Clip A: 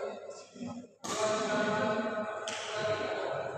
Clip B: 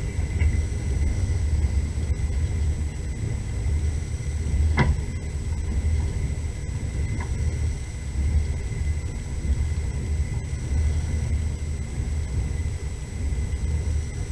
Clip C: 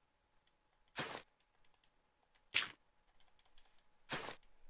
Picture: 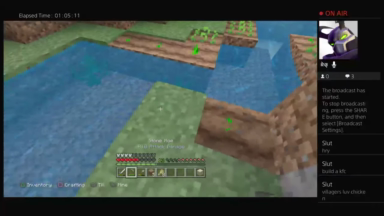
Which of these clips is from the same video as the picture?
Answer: C